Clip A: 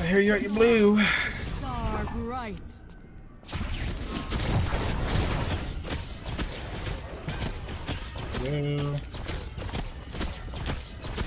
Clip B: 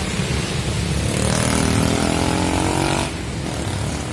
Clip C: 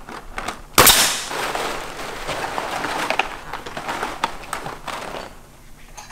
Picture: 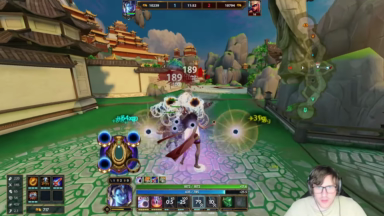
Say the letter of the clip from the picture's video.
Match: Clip A